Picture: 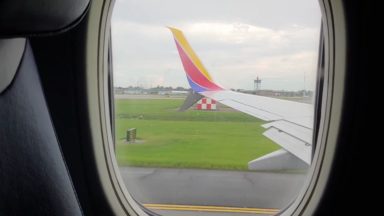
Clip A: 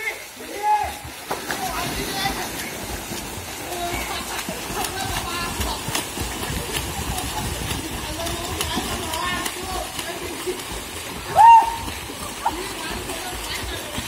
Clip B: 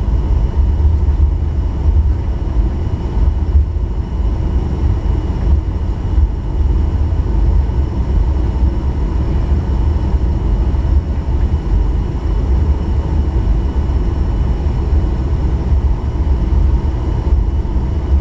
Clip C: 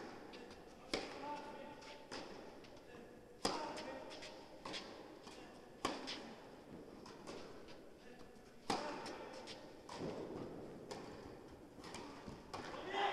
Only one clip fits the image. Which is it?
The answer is B